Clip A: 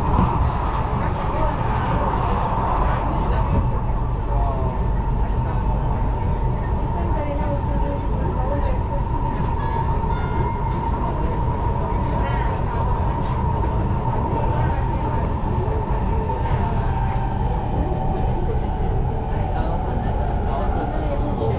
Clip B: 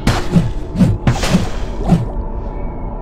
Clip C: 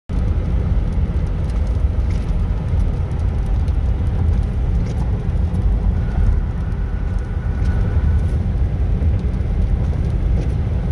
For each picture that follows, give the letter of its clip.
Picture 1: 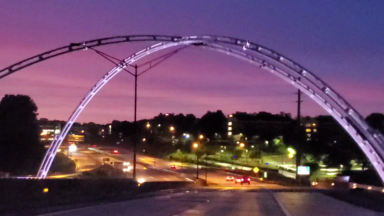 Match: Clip C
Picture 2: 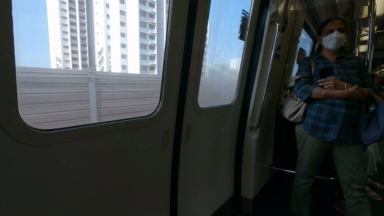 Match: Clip A